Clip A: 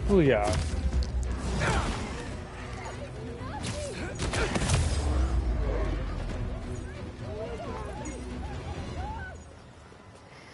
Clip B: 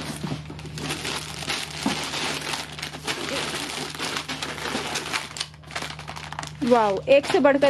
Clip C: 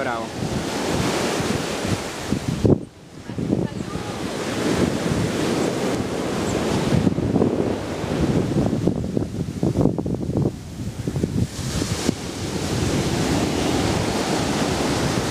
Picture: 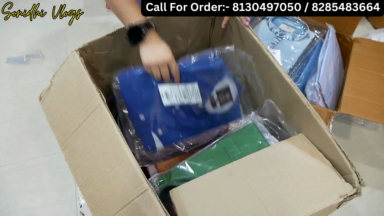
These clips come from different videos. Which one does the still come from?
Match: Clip B